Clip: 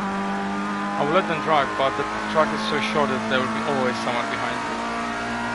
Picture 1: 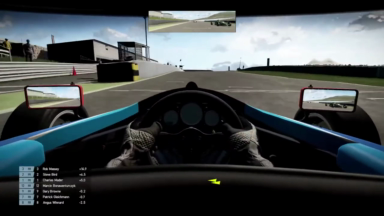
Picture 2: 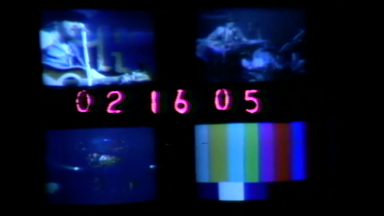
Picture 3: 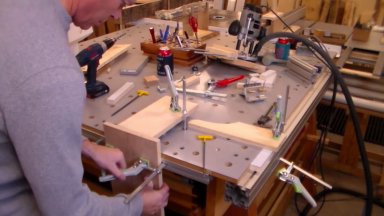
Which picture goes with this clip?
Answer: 1